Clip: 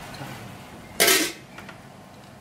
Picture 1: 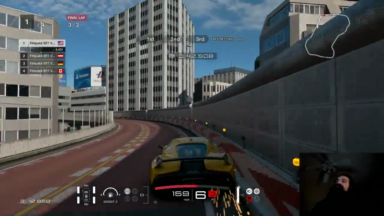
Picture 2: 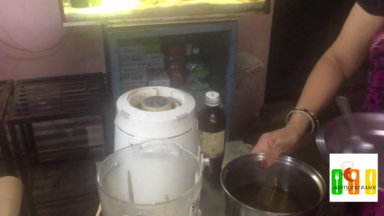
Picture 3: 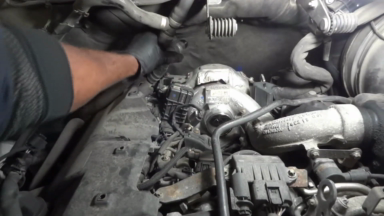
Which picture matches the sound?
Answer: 2